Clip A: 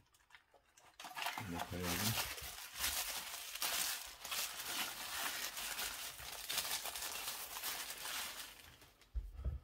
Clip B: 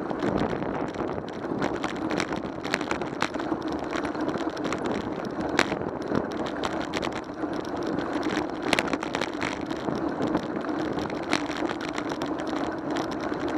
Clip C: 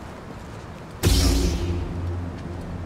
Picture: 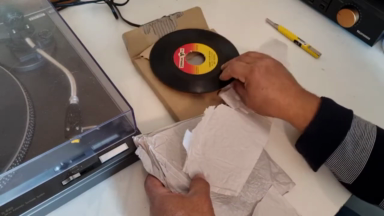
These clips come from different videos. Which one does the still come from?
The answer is A